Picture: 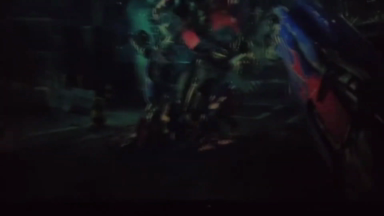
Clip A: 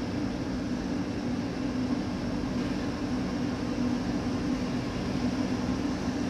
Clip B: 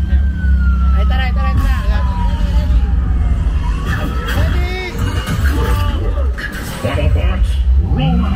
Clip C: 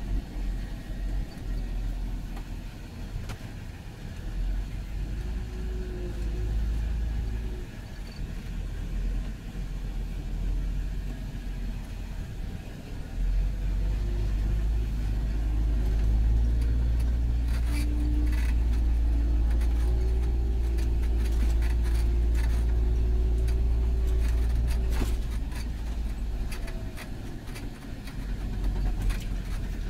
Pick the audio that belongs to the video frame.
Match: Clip B